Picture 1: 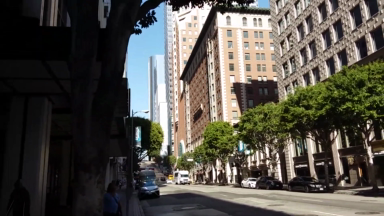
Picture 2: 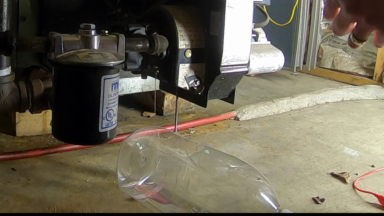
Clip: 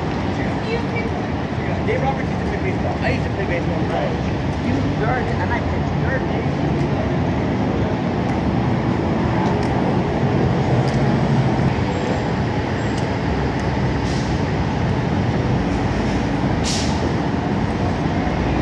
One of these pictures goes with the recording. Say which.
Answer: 1